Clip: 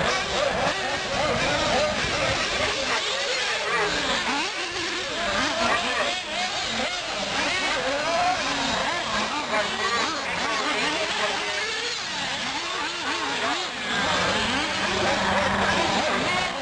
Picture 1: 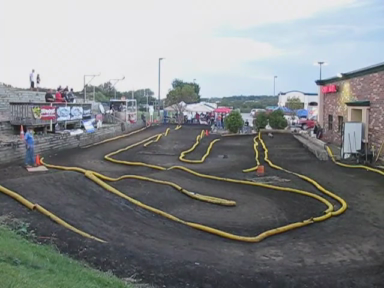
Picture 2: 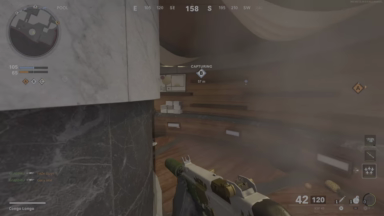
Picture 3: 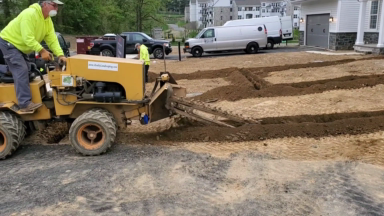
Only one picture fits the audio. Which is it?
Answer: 1